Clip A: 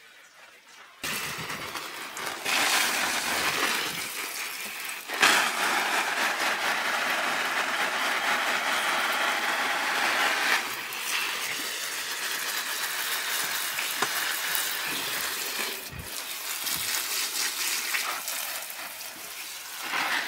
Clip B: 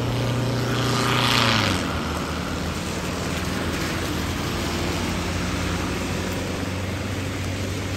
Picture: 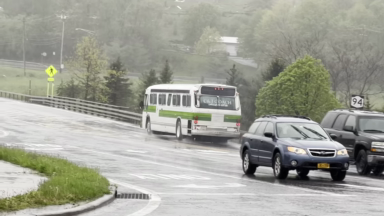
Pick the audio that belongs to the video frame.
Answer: B